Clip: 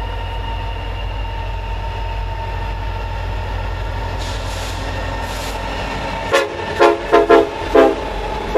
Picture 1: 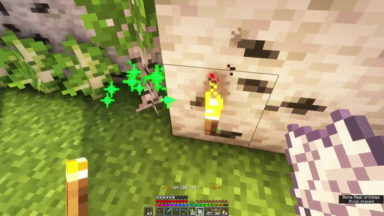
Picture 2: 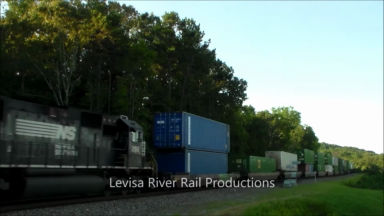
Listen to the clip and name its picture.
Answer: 2